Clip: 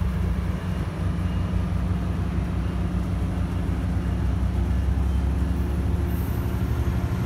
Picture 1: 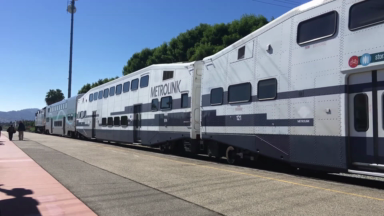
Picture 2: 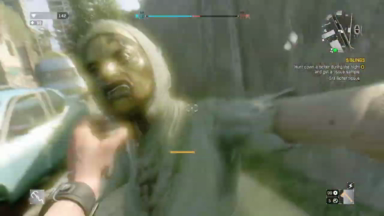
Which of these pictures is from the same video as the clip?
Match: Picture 1